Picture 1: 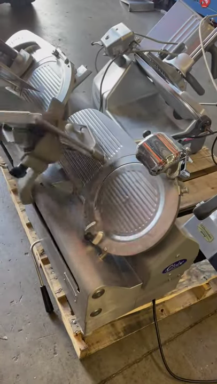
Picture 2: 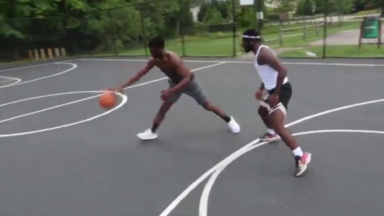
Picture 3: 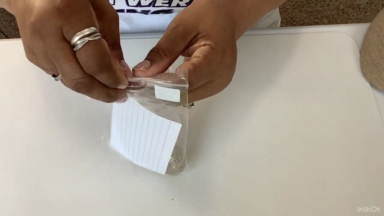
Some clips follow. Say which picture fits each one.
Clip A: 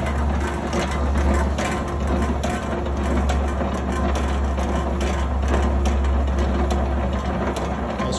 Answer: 1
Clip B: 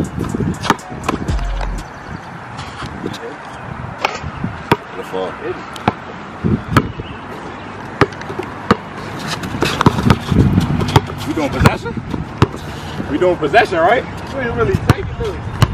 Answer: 2